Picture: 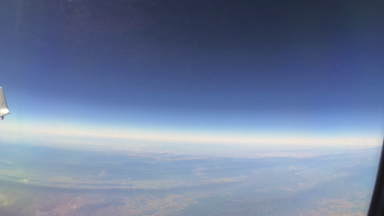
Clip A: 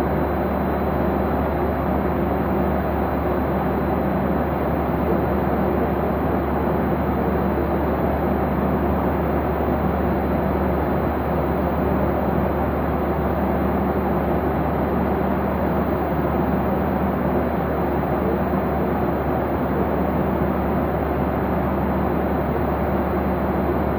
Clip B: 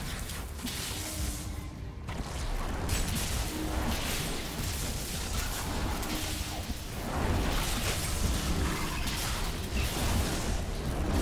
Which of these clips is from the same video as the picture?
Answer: A